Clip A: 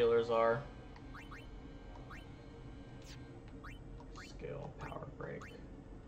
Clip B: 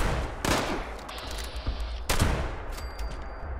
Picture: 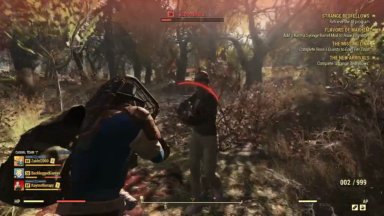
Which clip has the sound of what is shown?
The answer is B